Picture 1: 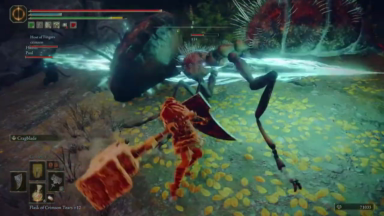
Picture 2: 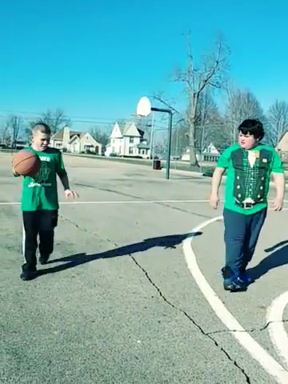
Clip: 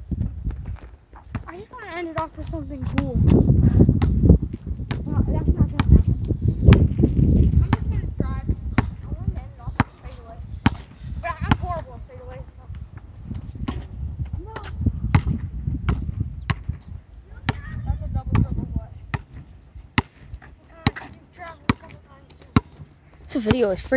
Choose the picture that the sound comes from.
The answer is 2